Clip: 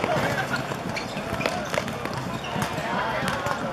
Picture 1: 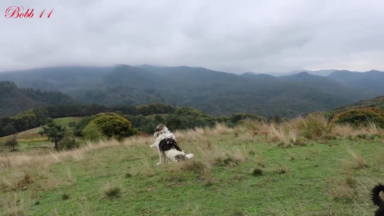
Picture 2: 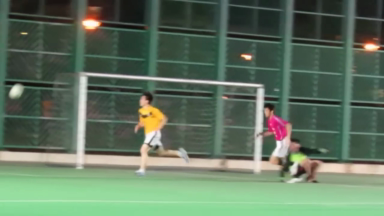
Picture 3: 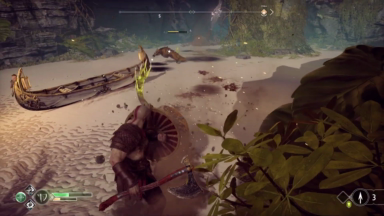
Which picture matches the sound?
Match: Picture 2